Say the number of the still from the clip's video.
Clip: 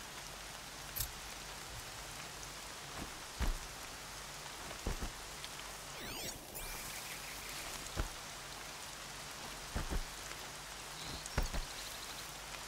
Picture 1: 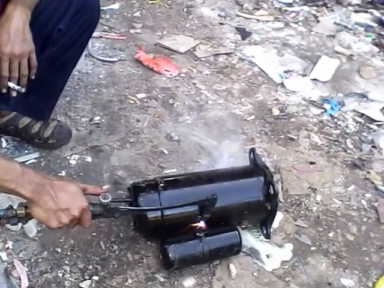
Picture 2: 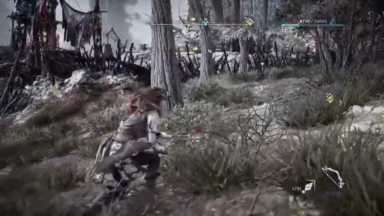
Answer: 2